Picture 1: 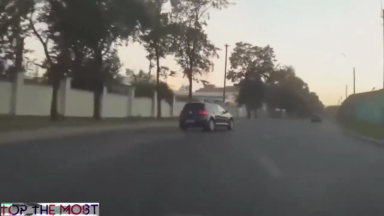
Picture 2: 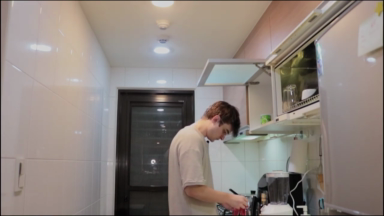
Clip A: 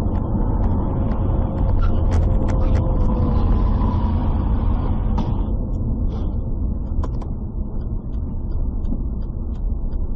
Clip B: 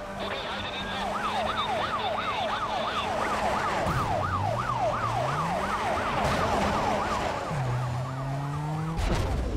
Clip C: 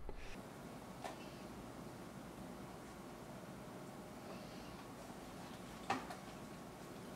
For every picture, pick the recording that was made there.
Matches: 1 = A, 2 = C